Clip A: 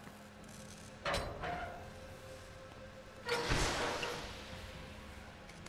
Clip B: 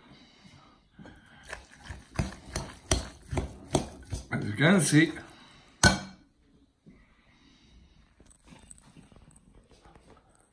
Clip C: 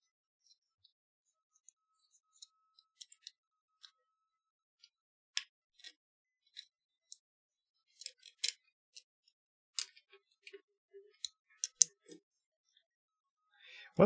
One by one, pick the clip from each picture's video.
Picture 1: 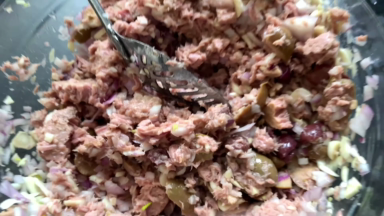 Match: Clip B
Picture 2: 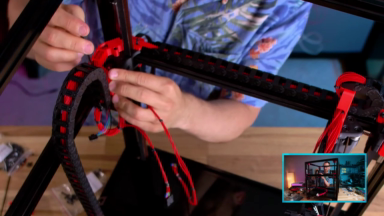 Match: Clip C